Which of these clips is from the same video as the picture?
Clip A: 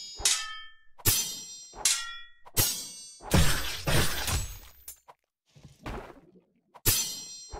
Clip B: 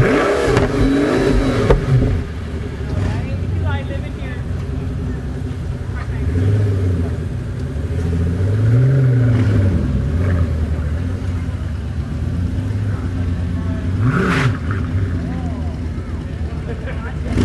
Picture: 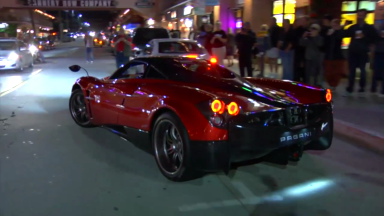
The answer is B